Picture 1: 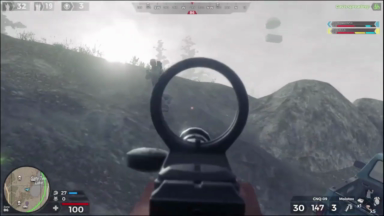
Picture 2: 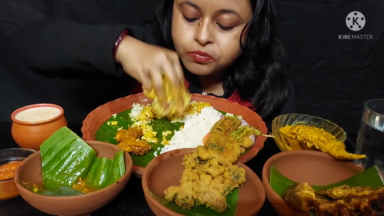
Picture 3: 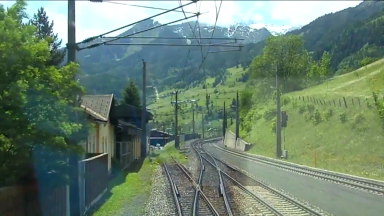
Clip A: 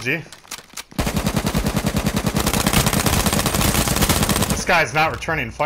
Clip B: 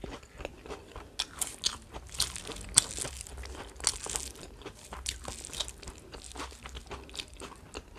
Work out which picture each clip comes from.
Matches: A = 1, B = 2